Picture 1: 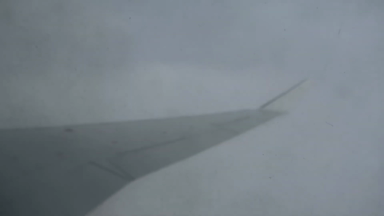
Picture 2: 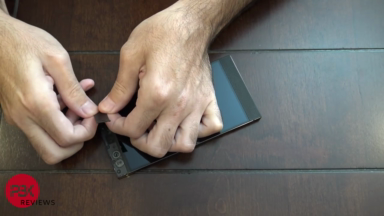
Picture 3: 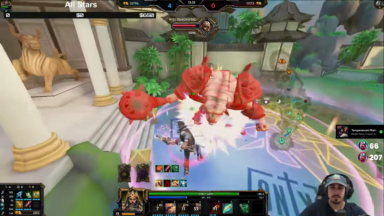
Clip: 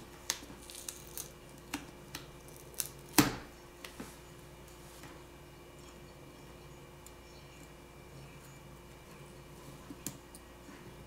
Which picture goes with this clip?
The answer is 2